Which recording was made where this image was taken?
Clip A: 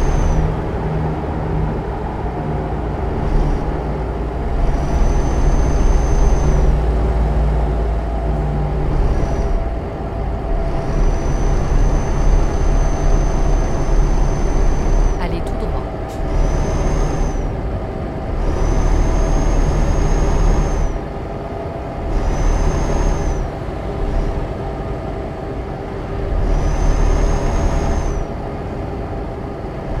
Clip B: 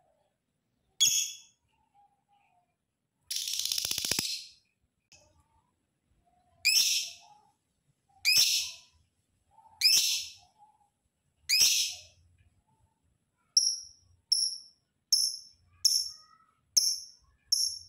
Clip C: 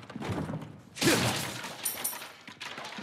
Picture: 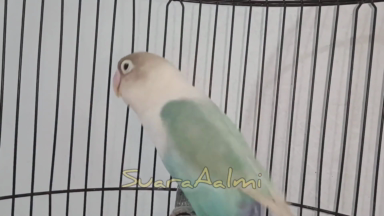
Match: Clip B